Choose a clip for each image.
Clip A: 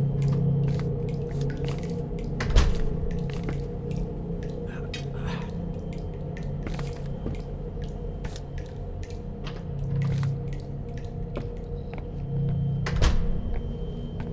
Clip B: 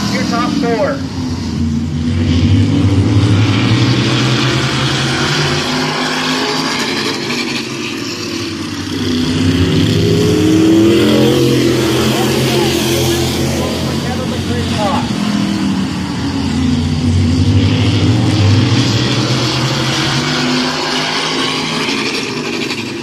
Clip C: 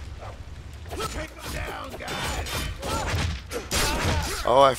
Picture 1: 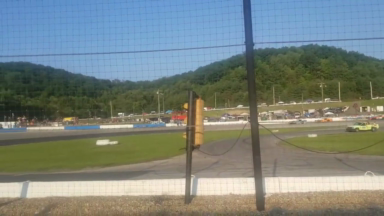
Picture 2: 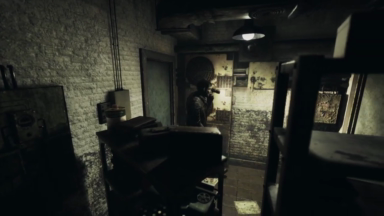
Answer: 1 B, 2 A